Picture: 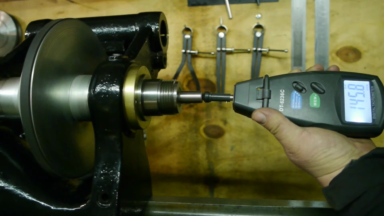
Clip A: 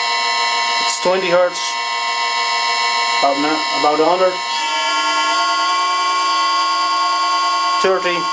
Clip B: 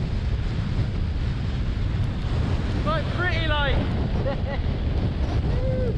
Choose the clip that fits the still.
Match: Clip A